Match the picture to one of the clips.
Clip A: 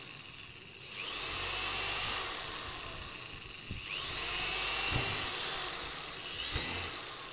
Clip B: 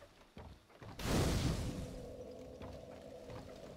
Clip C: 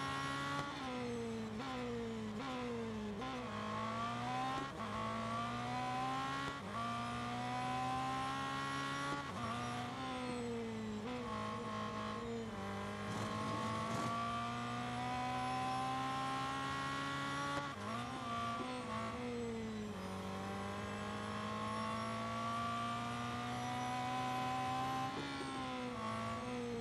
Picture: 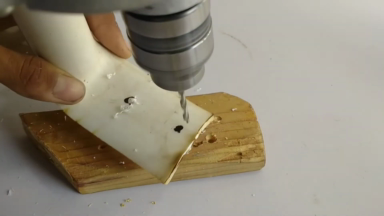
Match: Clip A